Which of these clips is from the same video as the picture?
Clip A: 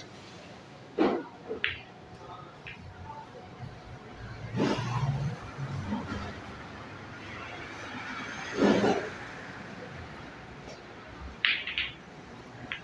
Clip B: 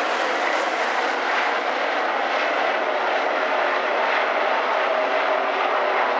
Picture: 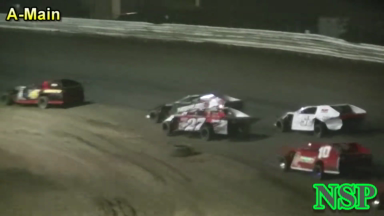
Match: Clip B